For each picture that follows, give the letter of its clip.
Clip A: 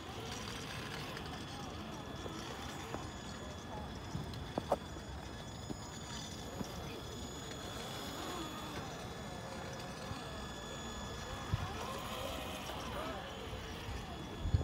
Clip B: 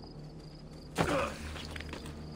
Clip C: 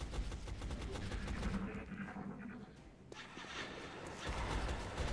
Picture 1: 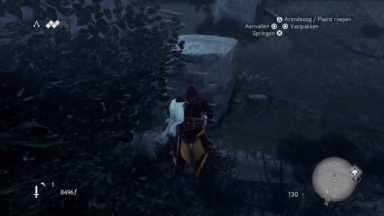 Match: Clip B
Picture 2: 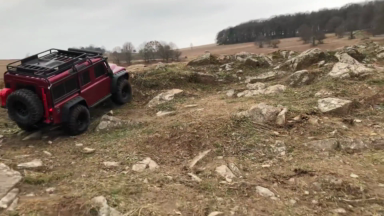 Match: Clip A